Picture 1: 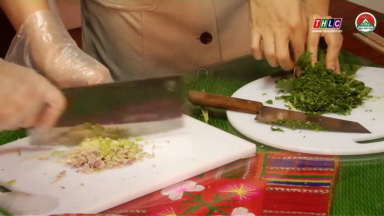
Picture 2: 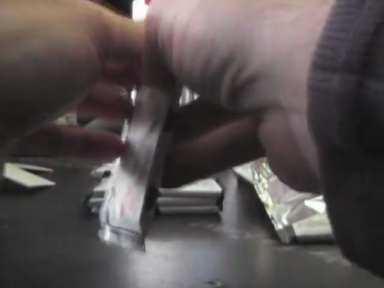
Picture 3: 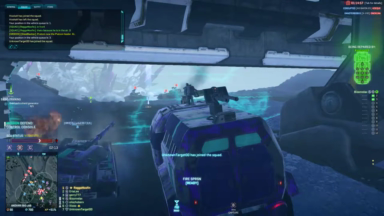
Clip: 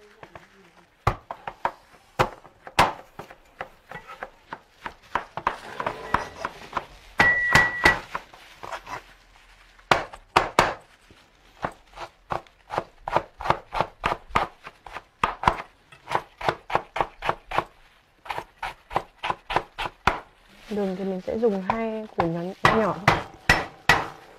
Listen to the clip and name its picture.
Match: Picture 1